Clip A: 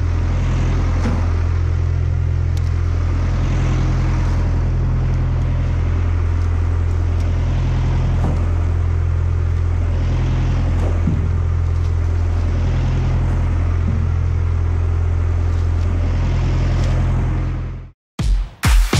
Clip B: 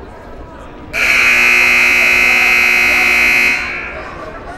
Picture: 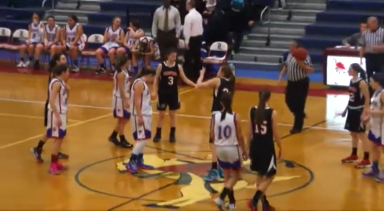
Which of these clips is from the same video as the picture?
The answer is B